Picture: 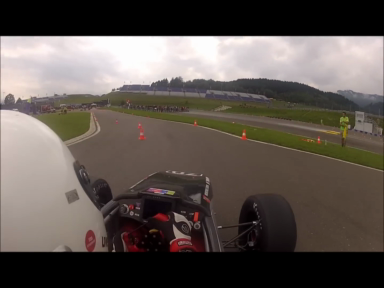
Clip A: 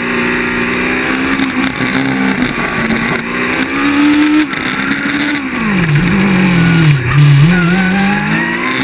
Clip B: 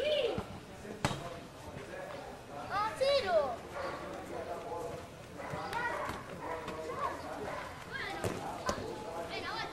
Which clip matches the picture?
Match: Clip A